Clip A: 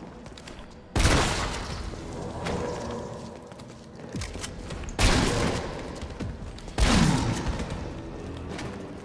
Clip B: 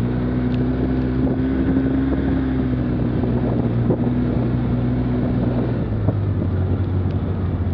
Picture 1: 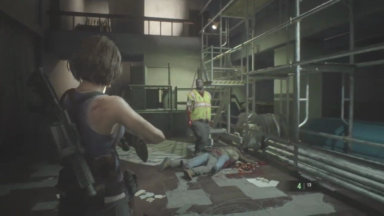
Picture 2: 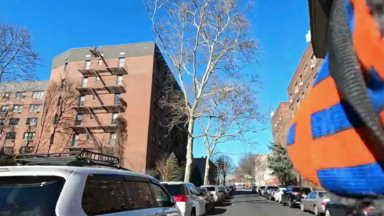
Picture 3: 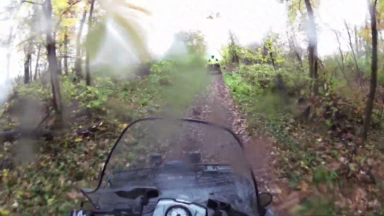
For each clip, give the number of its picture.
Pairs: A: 1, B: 3